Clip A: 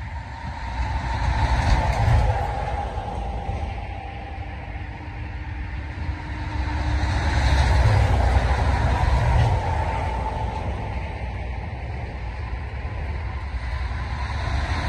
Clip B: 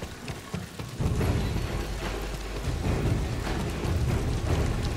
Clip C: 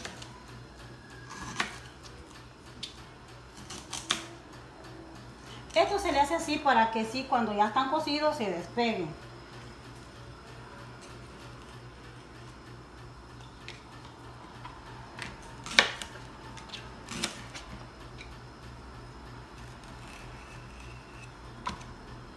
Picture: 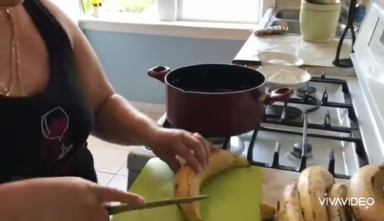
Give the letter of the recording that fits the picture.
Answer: C